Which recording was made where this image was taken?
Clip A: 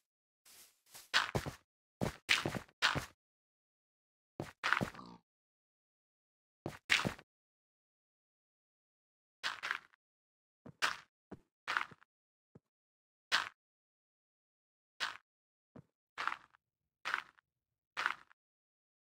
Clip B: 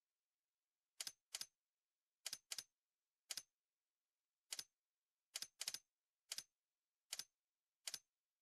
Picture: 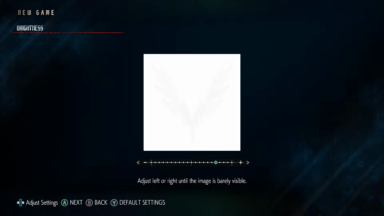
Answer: B